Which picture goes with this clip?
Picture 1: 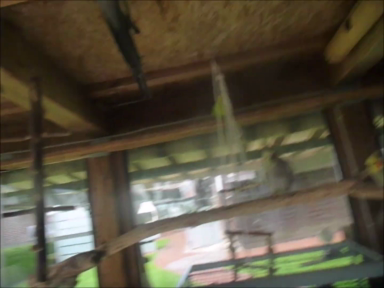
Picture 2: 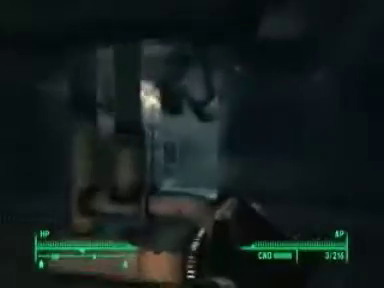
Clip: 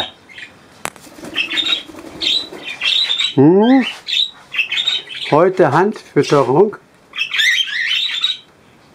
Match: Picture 1